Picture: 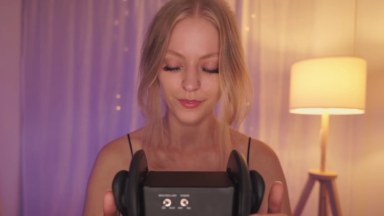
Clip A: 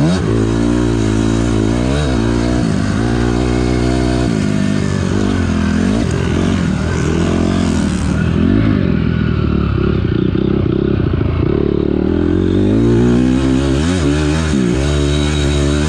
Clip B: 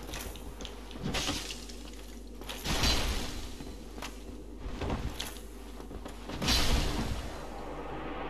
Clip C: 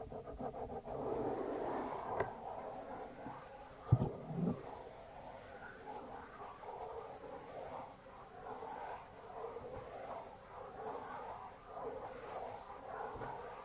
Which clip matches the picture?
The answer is C